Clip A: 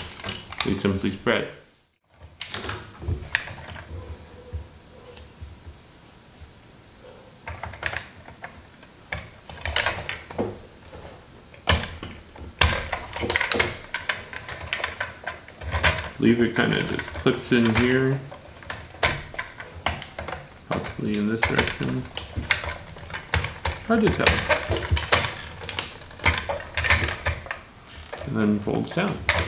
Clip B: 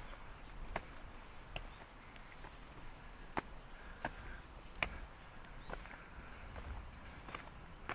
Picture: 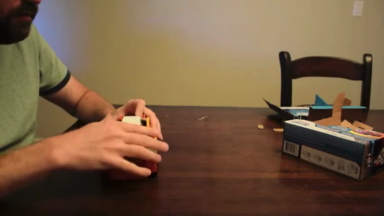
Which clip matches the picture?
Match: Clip A